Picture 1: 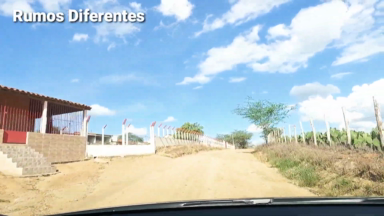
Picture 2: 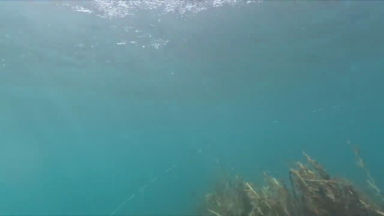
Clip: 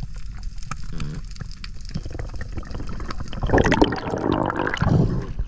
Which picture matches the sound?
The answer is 2